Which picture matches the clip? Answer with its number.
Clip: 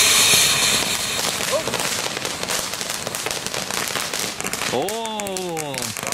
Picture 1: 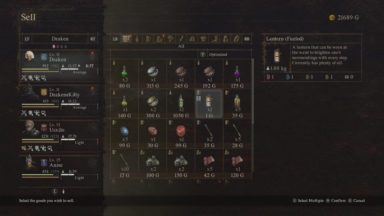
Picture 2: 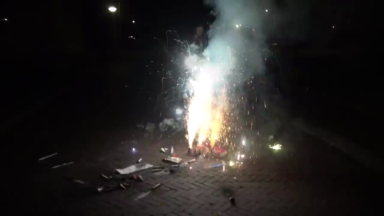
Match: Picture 2